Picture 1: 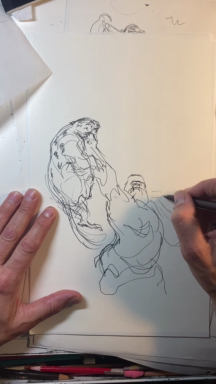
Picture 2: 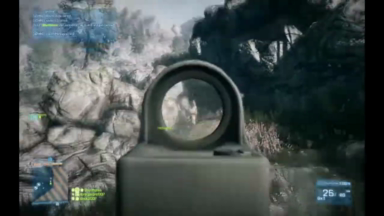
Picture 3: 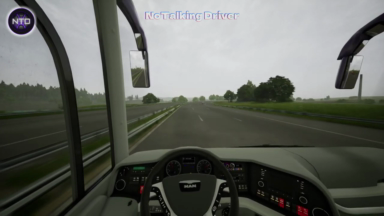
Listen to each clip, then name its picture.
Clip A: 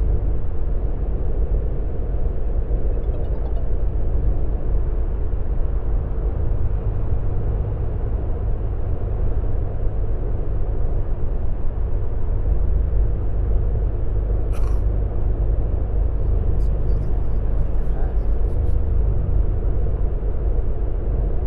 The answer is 3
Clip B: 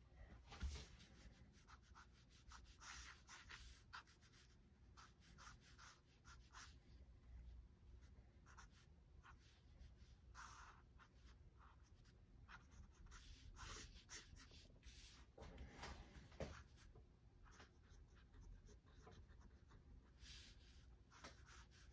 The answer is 1